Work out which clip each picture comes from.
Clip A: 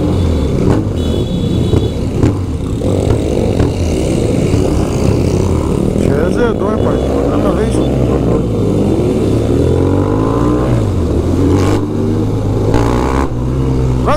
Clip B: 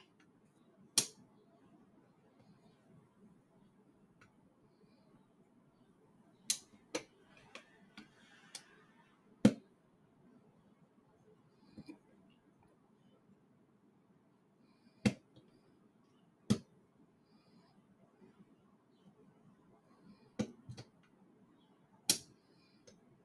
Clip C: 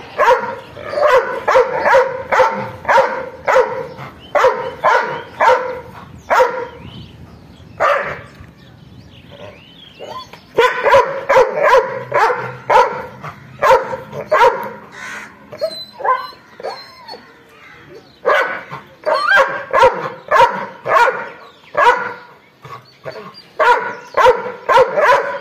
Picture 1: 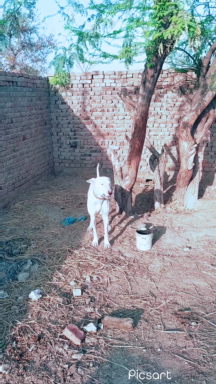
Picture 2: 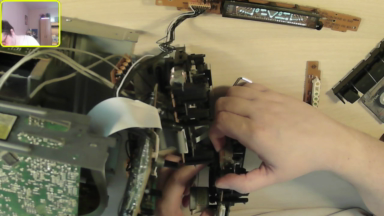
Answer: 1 C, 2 B